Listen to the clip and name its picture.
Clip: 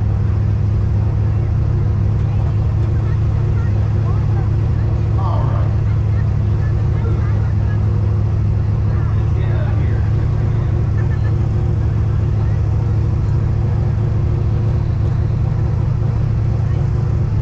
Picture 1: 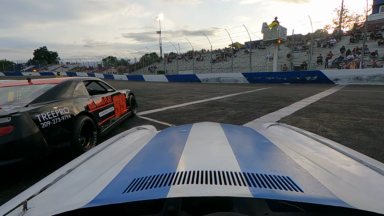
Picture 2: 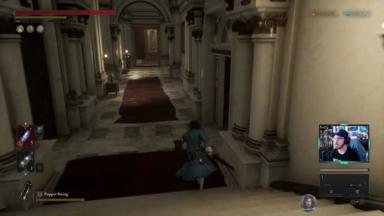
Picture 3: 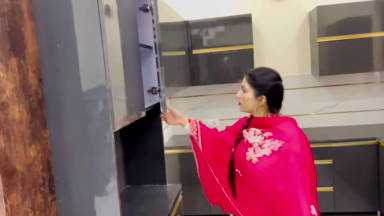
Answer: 1